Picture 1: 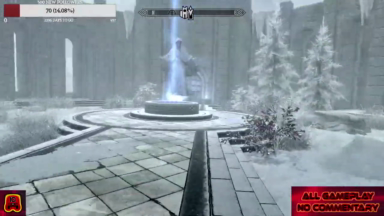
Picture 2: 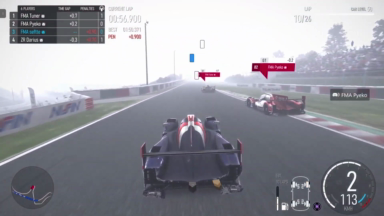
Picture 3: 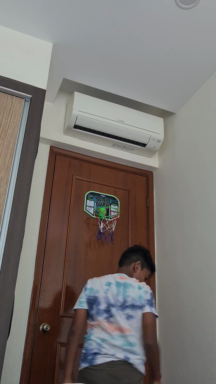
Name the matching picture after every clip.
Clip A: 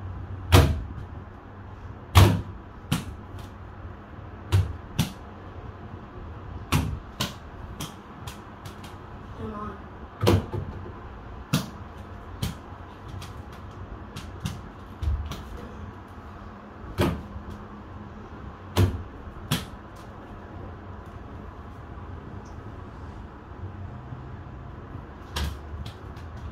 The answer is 3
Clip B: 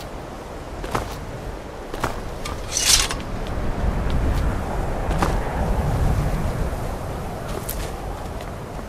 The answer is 1